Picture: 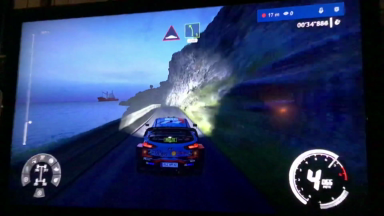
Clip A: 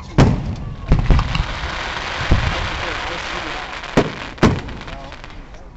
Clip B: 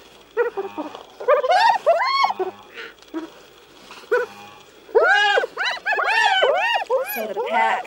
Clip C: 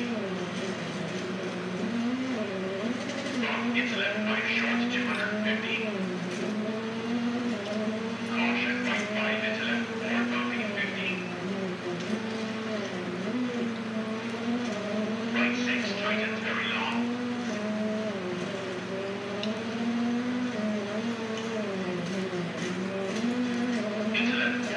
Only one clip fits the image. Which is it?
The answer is C